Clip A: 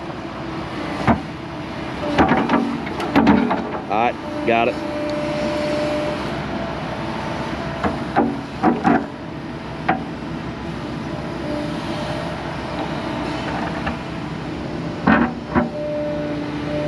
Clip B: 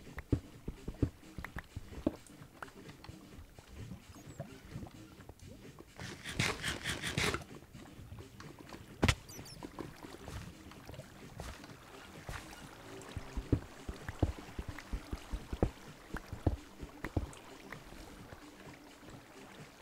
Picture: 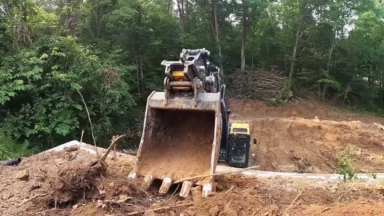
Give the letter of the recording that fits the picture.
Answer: A